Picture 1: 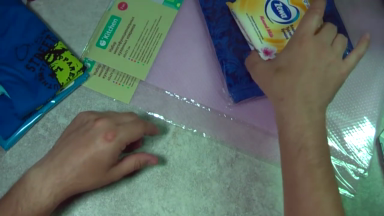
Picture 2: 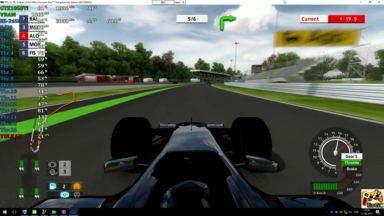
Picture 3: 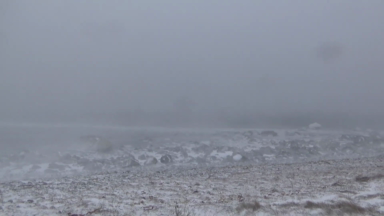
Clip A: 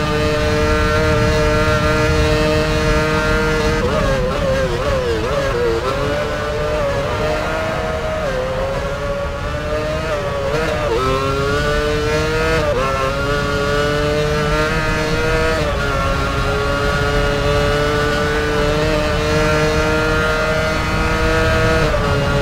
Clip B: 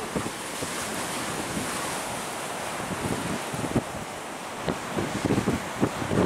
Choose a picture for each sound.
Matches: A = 2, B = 3